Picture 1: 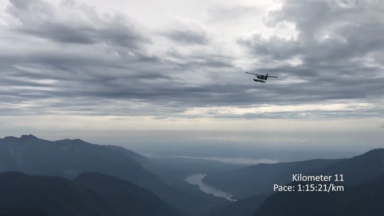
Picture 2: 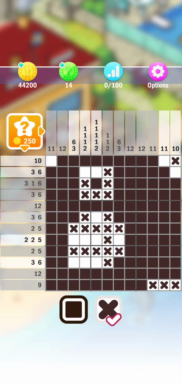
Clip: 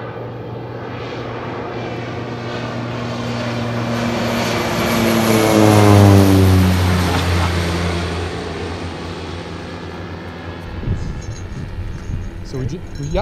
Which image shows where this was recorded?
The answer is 1